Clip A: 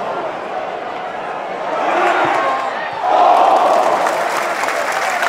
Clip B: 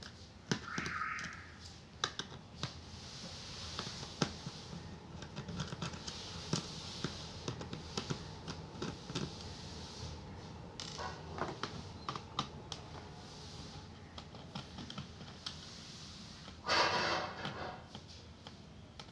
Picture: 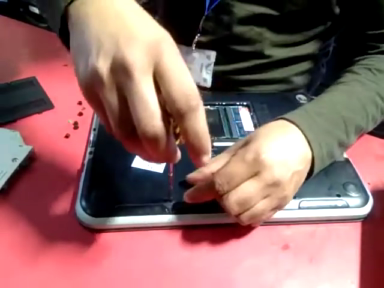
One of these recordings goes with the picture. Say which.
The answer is B